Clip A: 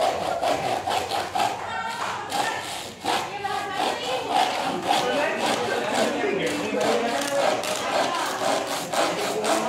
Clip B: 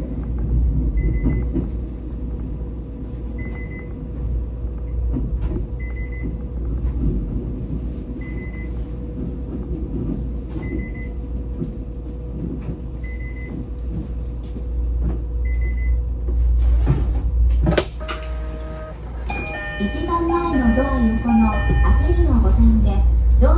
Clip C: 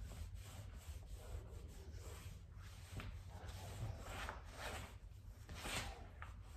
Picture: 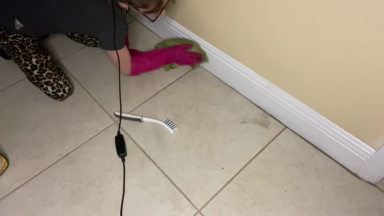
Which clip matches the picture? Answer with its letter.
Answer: C